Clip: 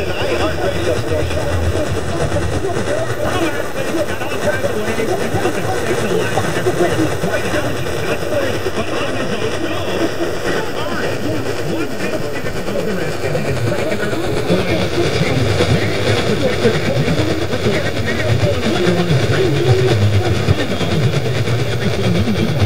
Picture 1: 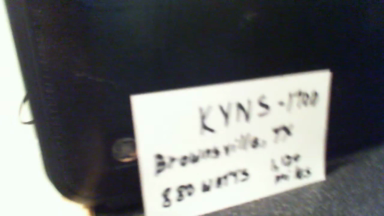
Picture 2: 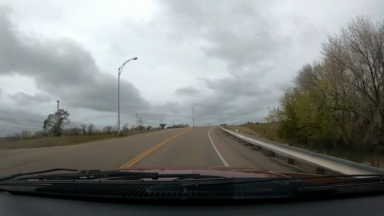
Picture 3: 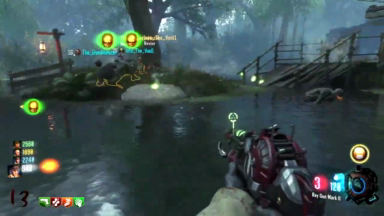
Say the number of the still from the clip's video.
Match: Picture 1